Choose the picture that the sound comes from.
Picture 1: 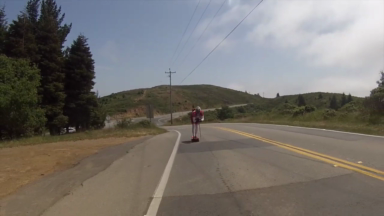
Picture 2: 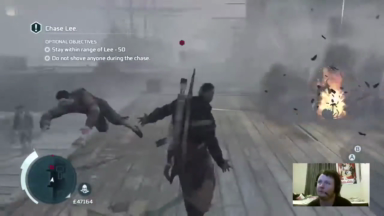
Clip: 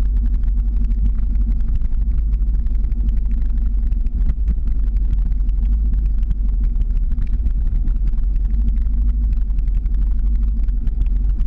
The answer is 1